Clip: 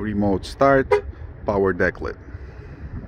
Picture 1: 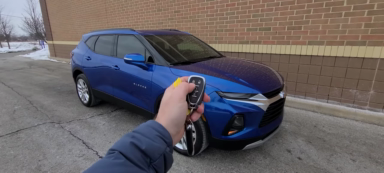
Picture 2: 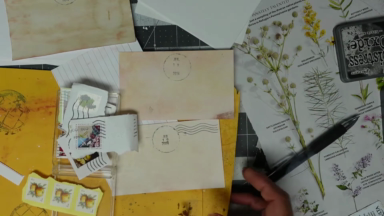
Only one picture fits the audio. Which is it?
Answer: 1